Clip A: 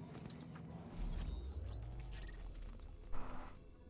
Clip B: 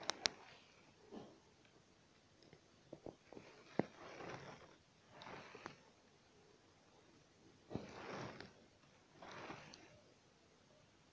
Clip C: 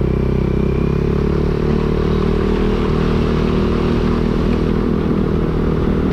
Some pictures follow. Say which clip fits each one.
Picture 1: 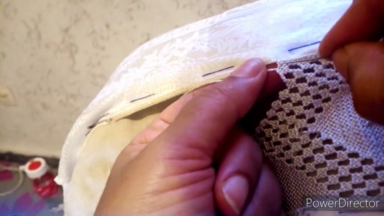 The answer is B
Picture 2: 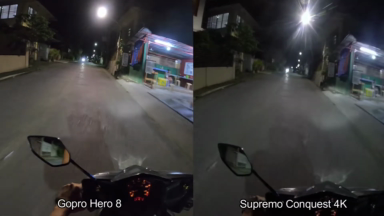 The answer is C